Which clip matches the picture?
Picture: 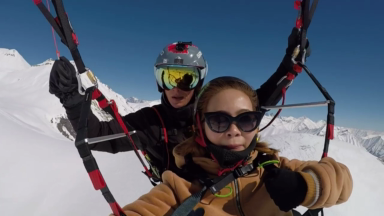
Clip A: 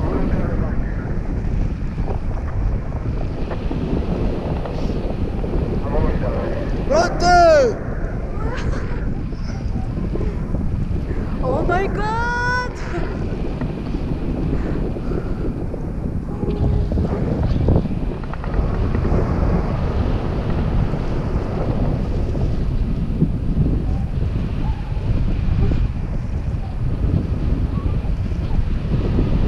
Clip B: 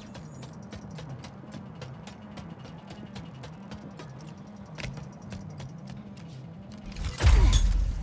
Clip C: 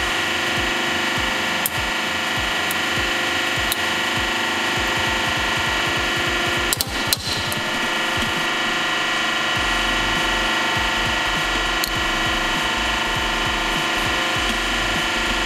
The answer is A